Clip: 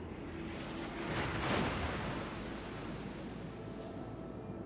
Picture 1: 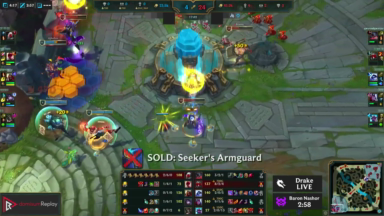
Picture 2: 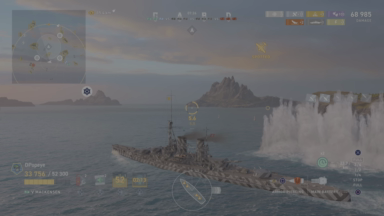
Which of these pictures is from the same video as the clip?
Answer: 2